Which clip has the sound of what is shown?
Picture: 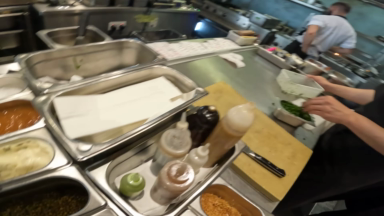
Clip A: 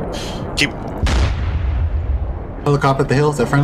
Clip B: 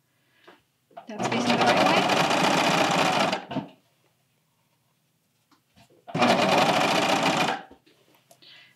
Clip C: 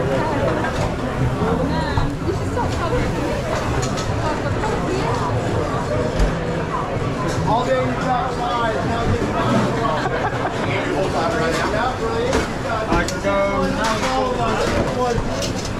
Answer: C